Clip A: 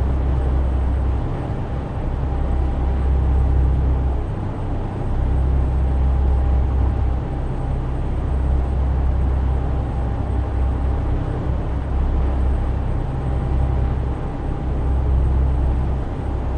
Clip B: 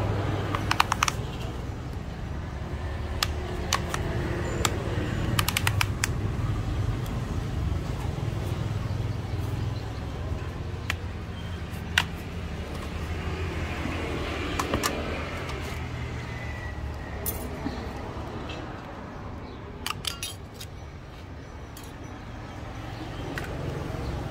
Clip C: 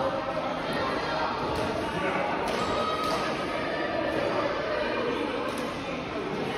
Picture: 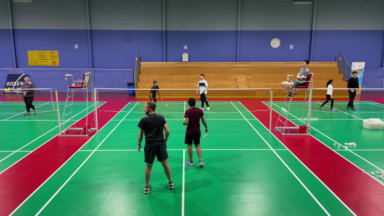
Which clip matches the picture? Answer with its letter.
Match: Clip C